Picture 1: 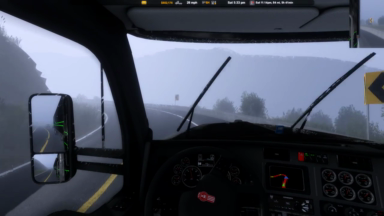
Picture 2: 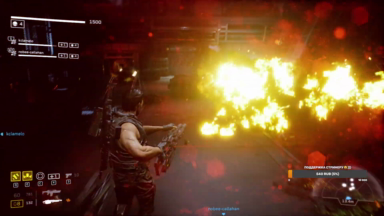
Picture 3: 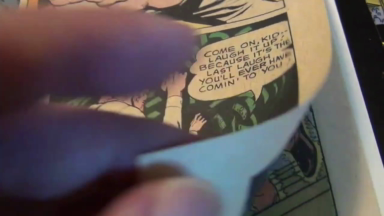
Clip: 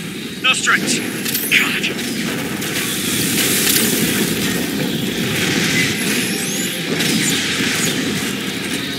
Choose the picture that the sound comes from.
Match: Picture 2